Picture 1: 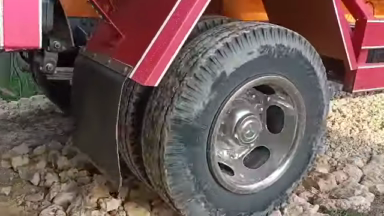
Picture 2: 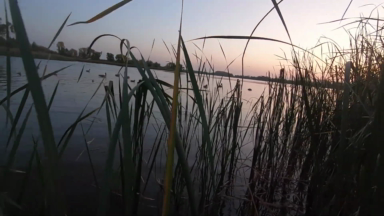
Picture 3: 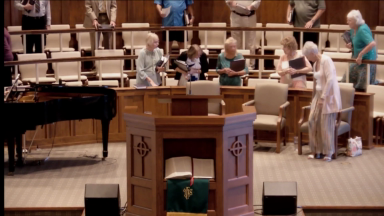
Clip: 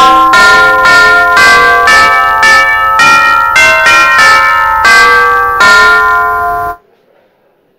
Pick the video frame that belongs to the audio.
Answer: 3